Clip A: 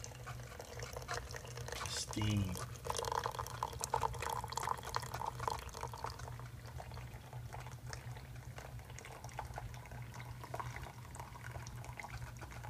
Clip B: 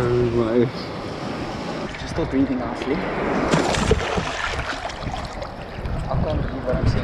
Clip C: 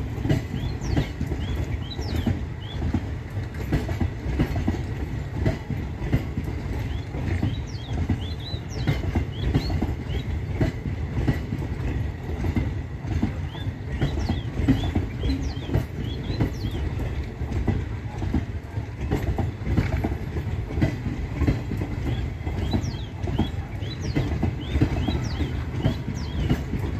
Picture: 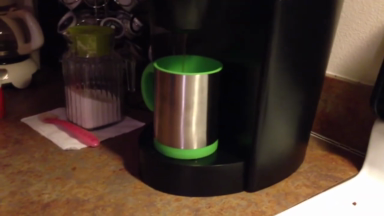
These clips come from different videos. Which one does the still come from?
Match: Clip A